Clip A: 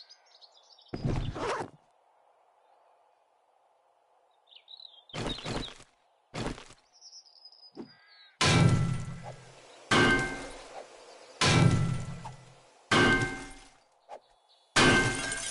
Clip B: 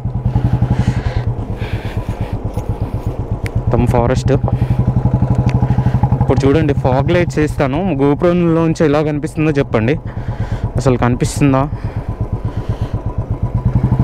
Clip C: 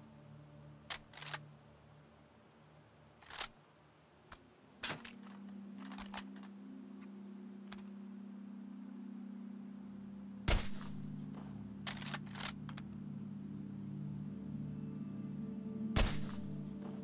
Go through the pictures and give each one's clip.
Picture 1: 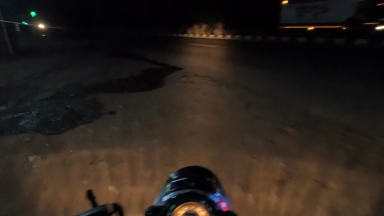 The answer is B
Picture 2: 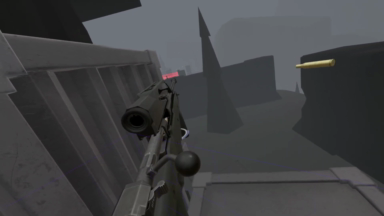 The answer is C